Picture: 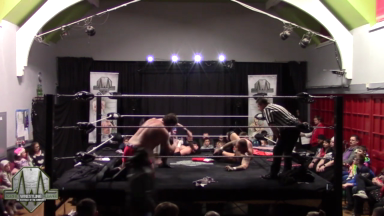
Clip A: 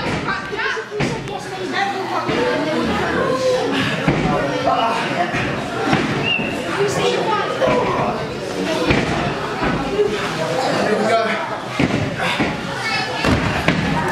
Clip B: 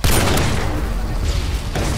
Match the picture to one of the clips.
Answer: A